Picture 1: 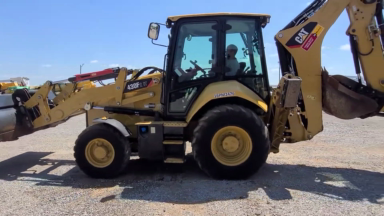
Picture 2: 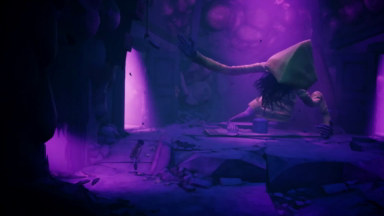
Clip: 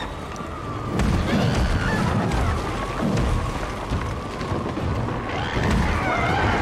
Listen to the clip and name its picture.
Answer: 2